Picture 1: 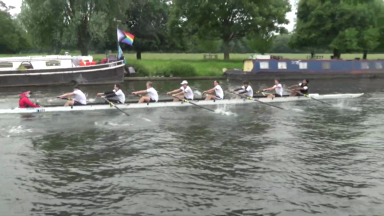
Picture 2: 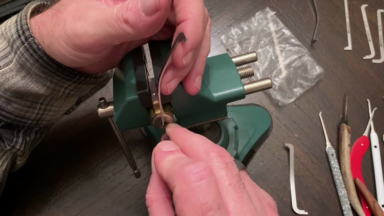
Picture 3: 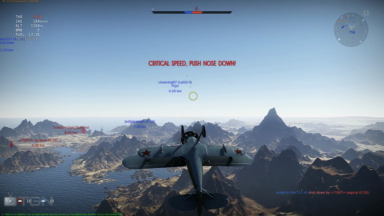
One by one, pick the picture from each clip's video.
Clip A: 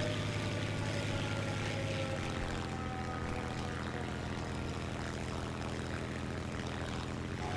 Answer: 3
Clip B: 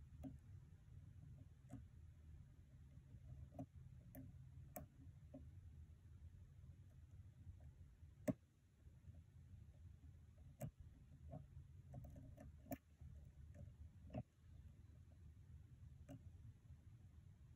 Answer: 2